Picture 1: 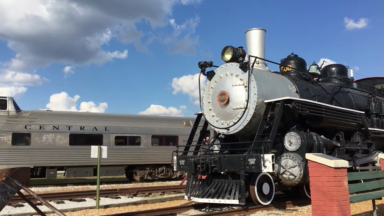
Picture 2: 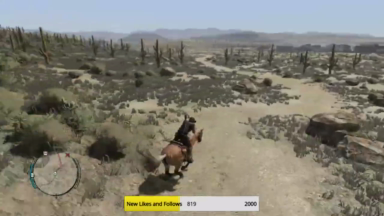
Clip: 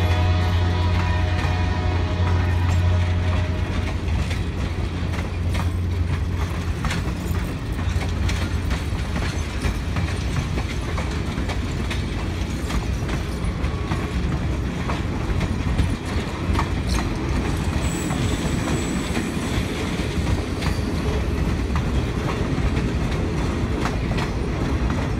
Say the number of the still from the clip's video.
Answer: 1